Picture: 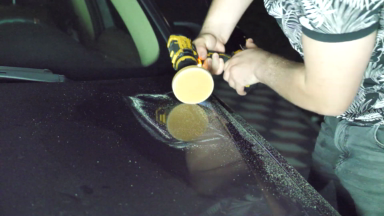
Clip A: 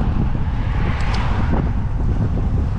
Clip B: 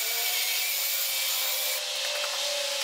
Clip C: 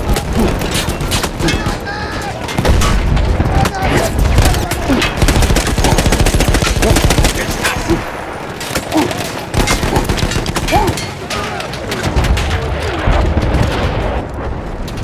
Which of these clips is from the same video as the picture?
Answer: B